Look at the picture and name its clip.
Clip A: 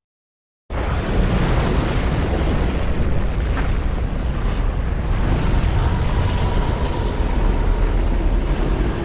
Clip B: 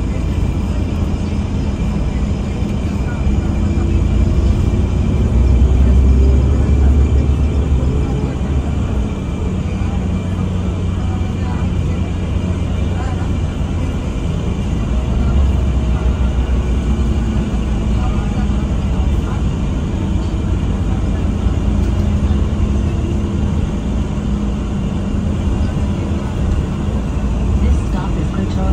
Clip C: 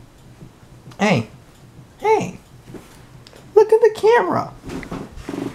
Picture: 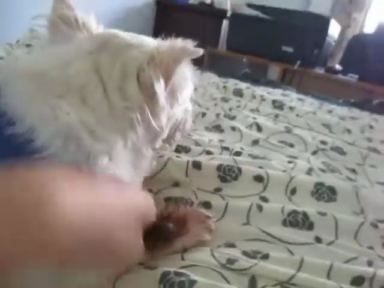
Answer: C